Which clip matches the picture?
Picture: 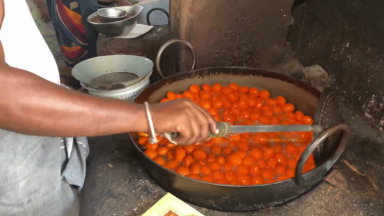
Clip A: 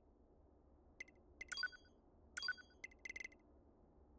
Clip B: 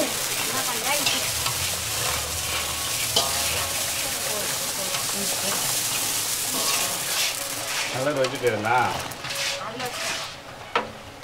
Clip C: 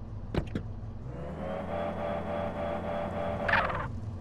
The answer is B